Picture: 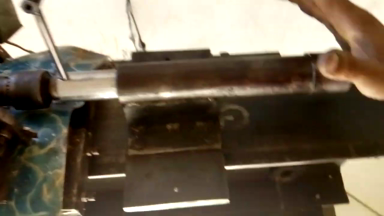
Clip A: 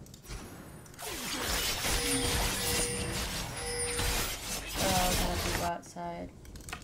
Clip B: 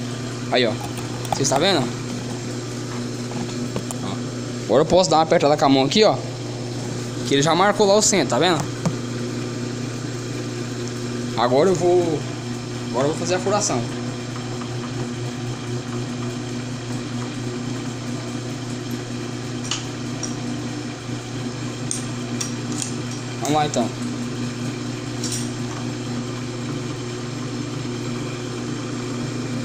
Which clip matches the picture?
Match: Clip B